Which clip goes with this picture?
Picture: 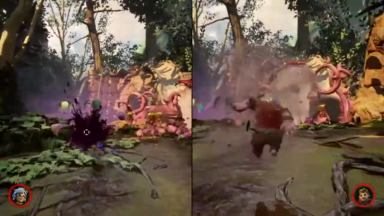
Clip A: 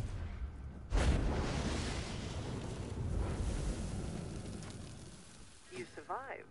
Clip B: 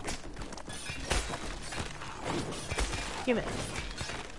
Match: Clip B